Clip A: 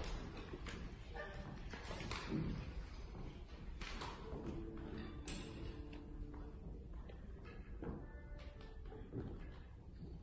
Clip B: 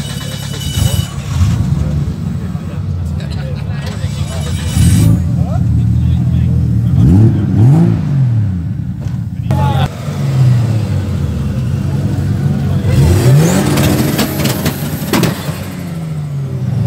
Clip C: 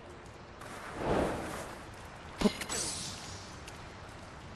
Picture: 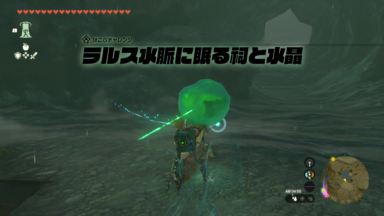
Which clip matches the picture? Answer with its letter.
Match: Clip C